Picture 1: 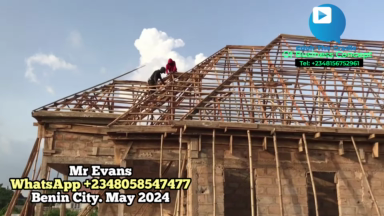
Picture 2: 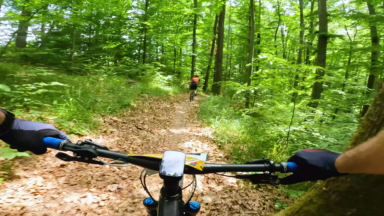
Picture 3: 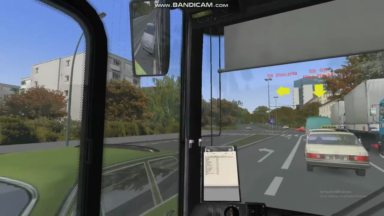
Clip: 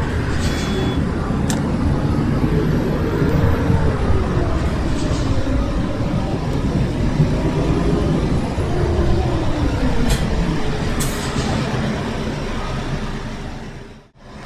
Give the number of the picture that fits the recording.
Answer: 3